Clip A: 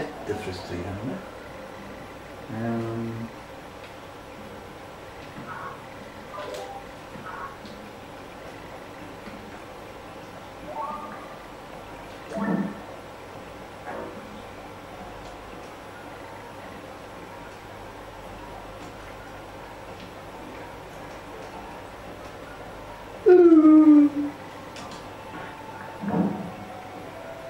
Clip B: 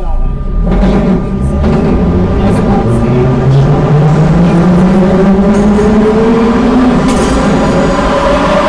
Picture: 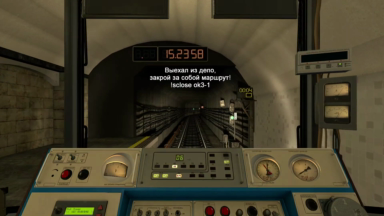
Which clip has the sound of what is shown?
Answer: B